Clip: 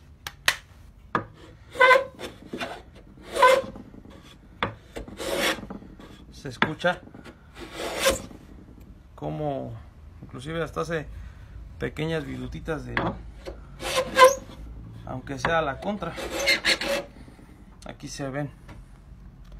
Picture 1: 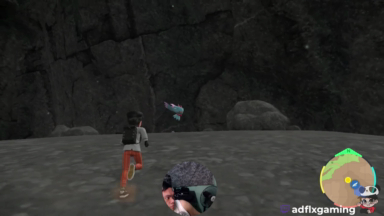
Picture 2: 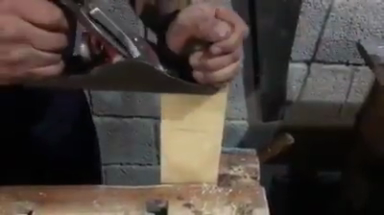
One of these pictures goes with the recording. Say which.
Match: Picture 2